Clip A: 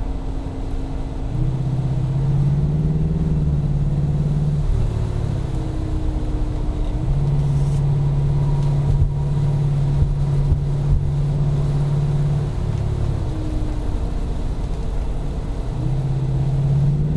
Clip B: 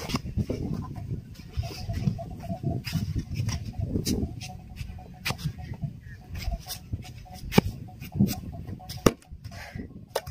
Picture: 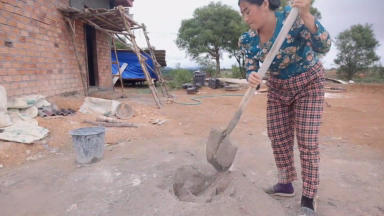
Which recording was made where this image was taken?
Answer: B